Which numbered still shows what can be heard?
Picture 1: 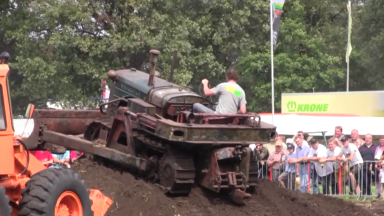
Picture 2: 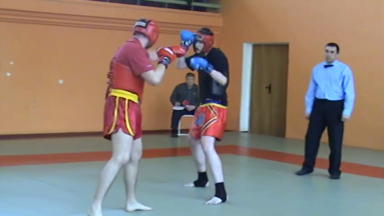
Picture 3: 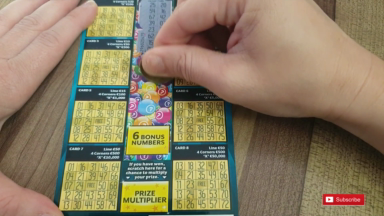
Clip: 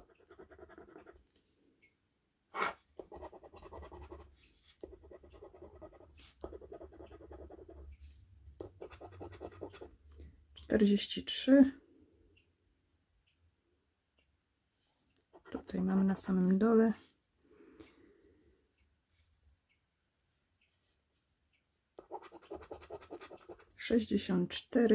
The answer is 3